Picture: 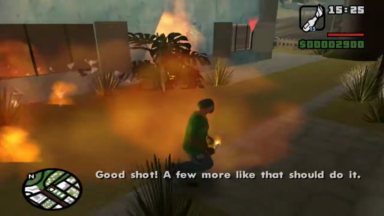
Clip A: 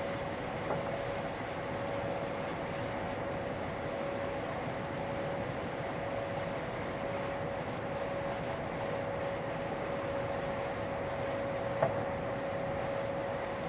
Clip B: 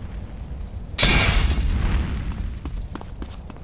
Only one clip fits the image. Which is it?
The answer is B